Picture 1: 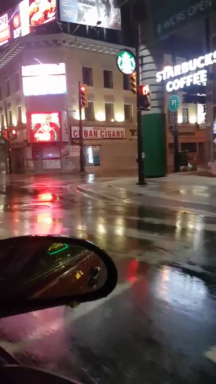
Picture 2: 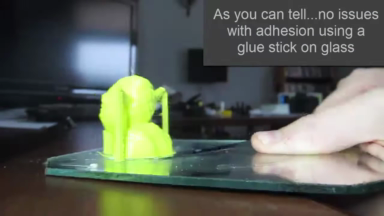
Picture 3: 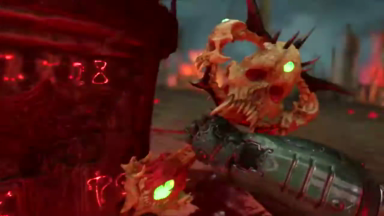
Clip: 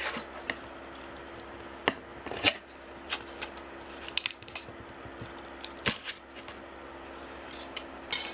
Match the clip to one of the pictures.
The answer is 2